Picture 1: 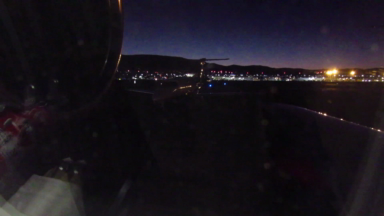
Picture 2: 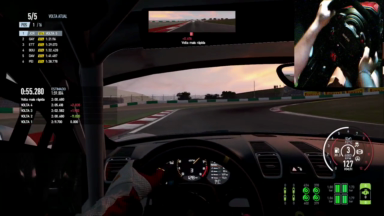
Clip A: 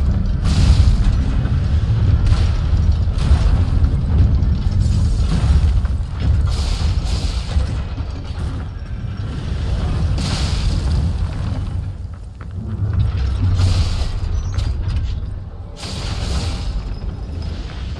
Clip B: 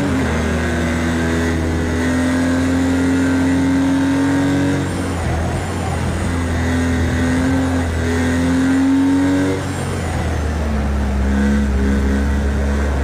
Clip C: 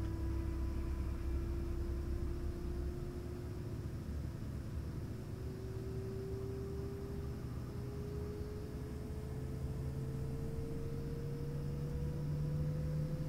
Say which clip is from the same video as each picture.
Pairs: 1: C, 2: B